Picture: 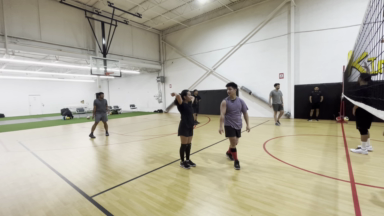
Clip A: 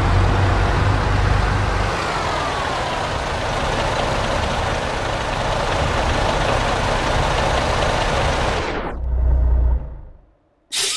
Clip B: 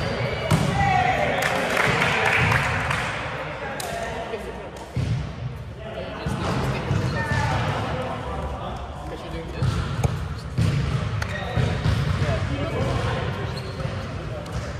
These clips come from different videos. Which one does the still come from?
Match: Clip B